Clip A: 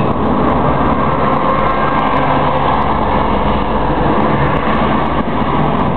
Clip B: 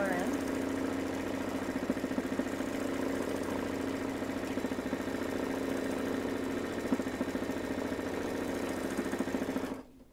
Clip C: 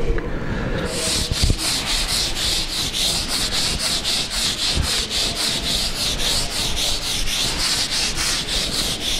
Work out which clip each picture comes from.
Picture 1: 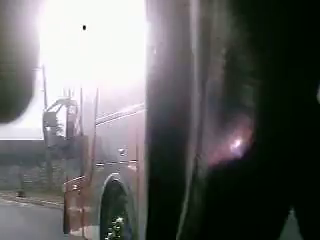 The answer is A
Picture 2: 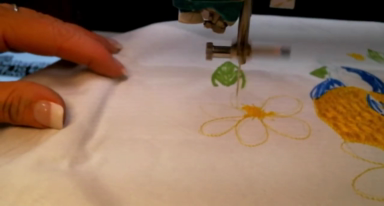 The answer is B